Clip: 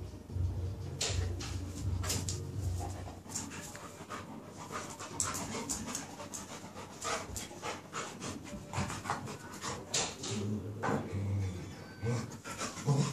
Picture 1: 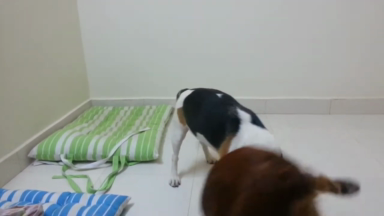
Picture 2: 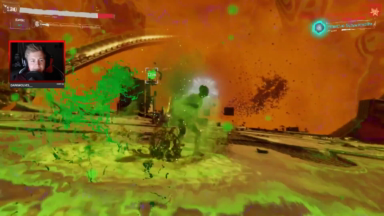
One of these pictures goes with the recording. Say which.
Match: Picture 1